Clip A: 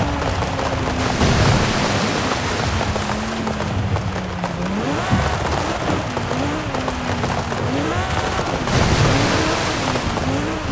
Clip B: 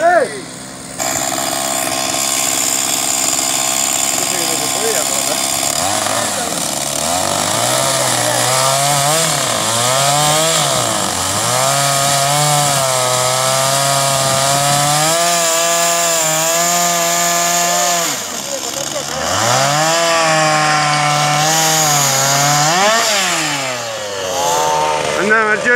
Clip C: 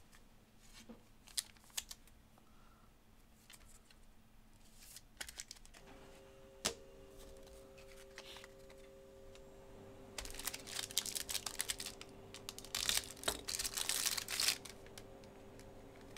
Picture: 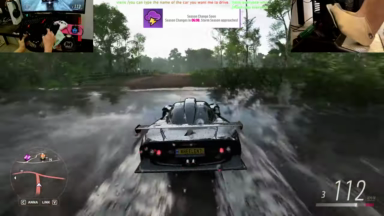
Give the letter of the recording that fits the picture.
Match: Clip A